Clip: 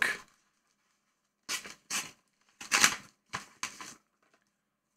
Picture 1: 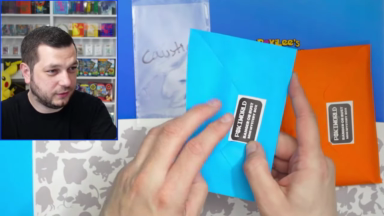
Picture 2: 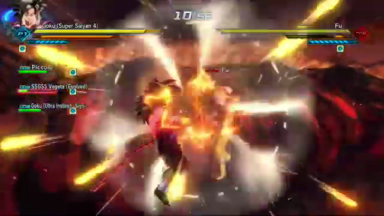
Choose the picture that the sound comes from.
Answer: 1